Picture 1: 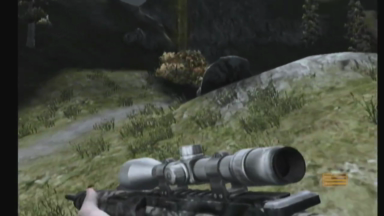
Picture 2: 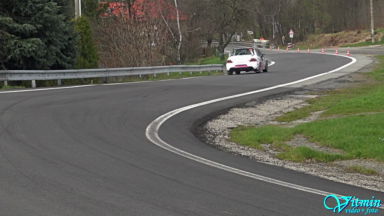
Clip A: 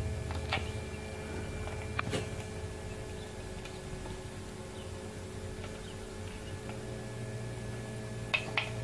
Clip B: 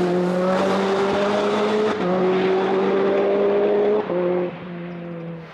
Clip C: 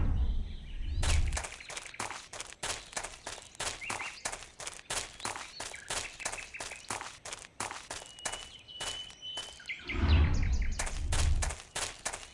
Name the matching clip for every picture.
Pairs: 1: C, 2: B